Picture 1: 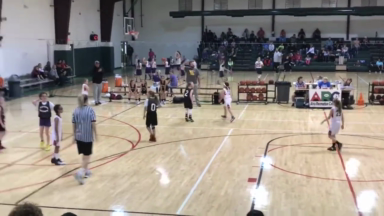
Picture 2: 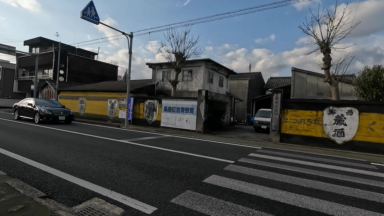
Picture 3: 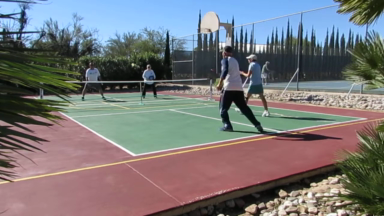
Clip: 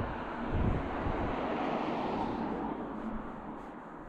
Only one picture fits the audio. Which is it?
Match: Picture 2